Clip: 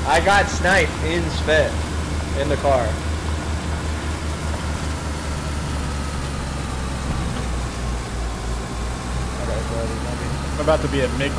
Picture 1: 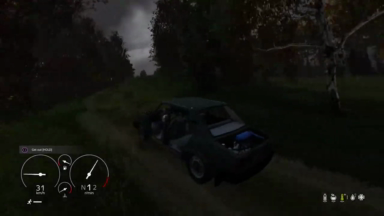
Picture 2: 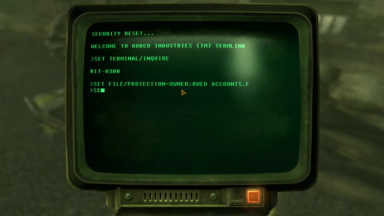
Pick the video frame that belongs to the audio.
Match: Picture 1